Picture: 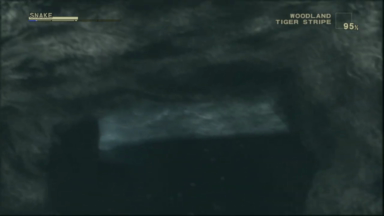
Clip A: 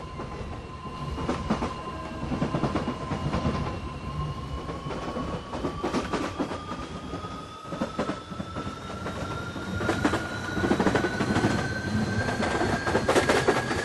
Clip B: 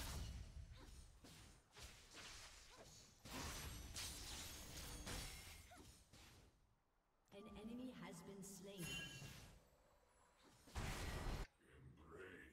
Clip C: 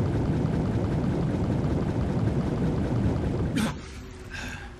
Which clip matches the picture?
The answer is C